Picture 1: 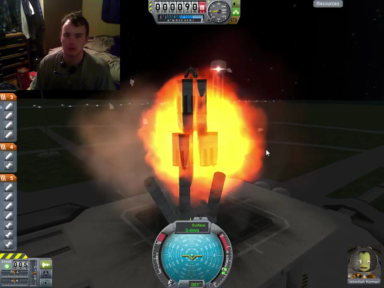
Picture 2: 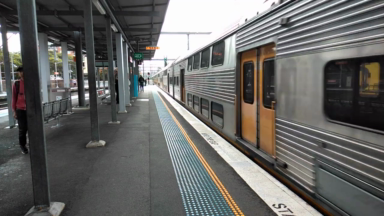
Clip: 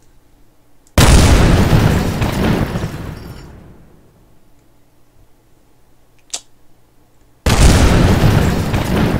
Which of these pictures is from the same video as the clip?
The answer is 1